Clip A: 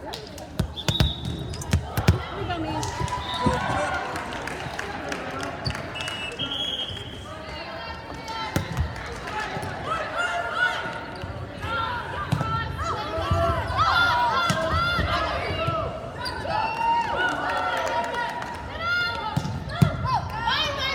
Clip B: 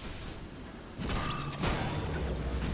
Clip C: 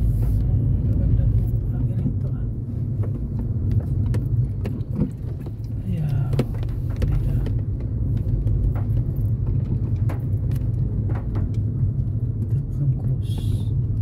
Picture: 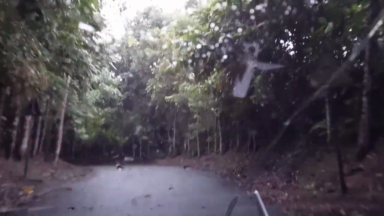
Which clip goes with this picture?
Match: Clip C